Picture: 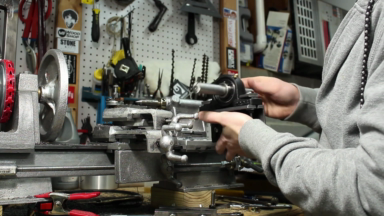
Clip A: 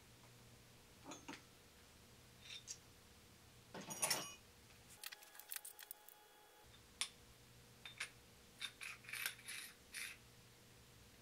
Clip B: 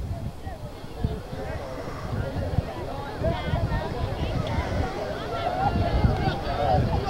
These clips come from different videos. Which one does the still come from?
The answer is A